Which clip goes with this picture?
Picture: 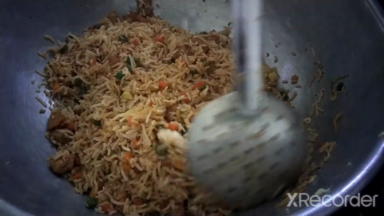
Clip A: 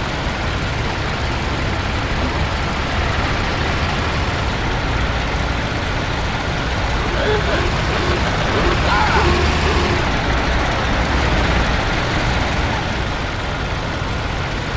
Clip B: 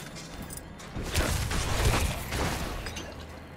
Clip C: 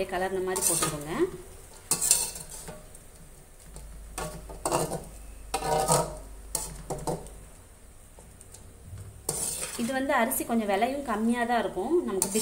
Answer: C